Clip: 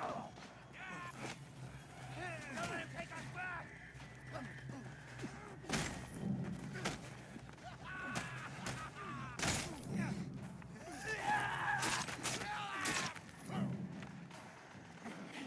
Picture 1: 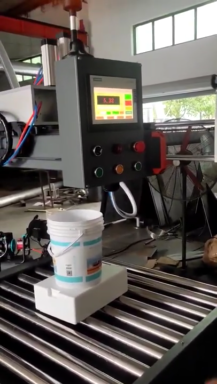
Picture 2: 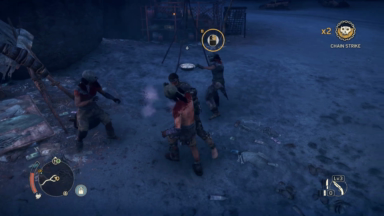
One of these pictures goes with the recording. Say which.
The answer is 2